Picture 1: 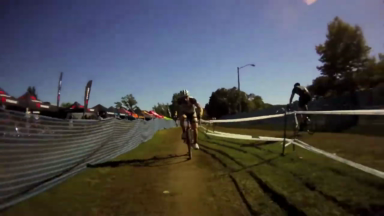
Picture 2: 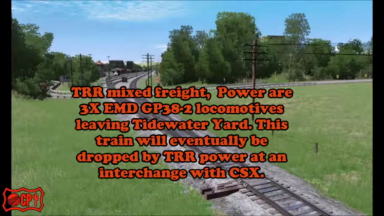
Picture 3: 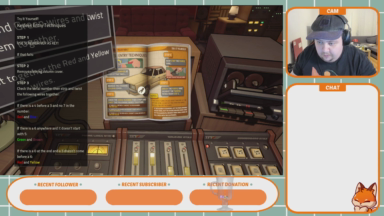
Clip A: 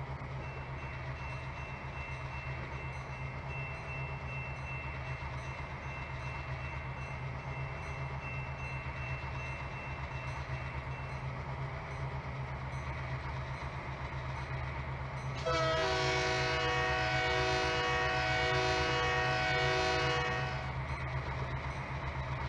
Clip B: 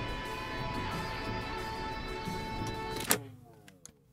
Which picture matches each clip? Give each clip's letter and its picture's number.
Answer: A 2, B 3